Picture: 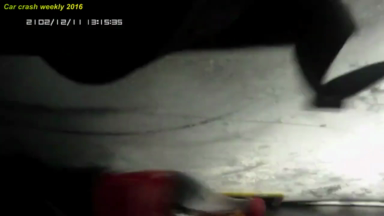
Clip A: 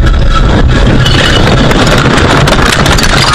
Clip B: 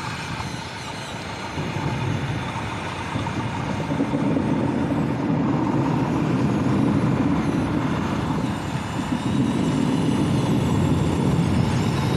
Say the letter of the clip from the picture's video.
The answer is A